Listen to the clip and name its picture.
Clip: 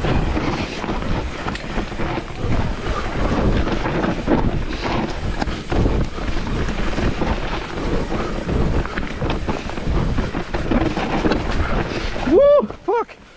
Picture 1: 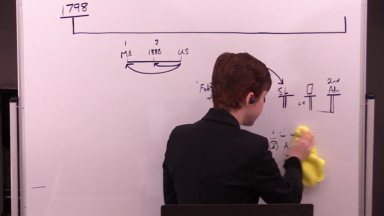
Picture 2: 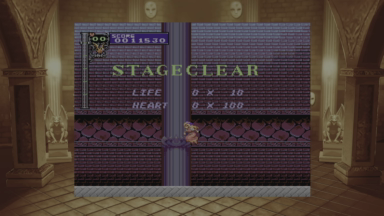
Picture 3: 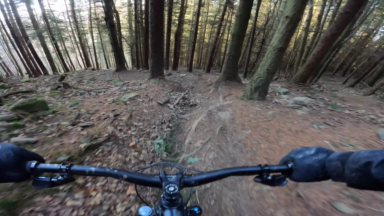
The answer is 3